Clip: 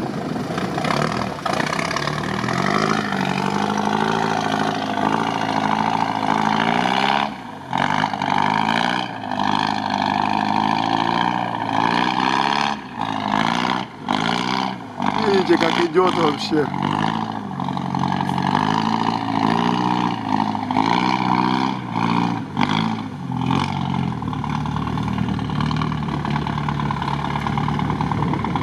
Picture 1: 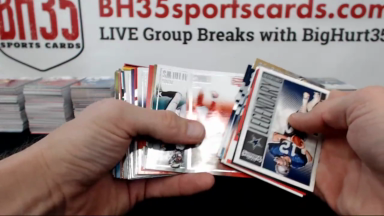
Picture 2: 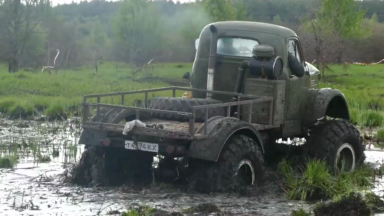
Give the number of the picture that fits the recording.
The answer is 2